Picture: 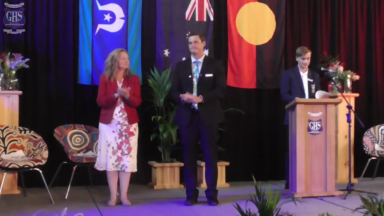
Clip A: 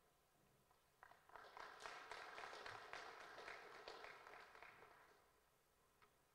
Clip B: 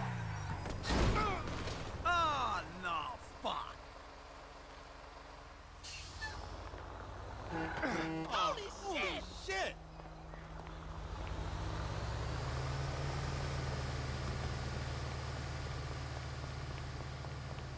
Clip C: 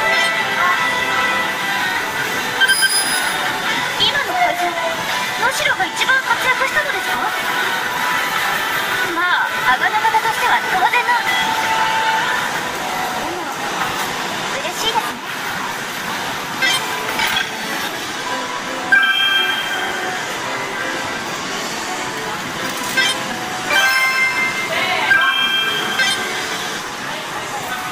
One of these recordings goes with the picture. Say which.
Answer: A